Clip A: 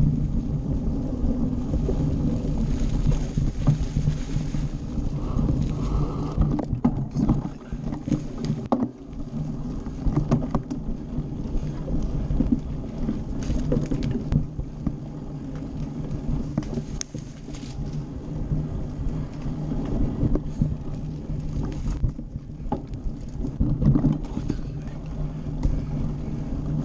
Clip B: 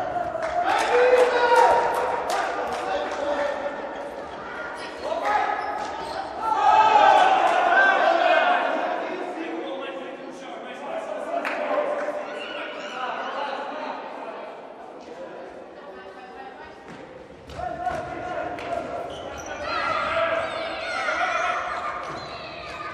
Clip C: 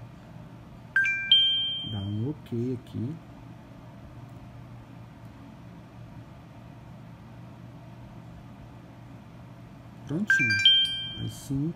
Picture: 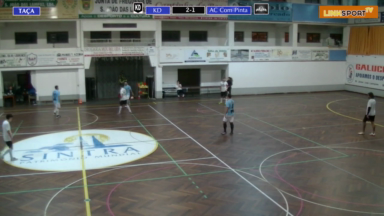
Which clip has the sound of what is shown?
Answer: B